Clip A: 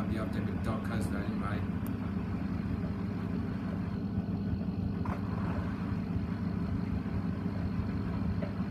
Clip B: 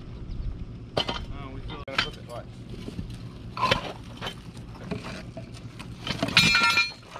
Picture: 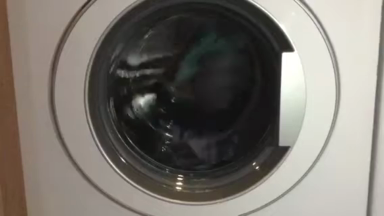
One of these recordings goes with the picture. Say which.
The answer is A